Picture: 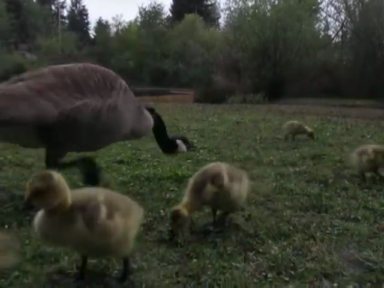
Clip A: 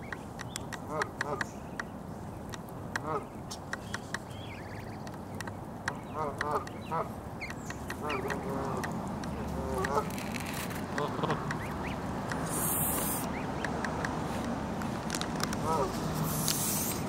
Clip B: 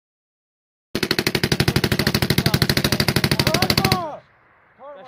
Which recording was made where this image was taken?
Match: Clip A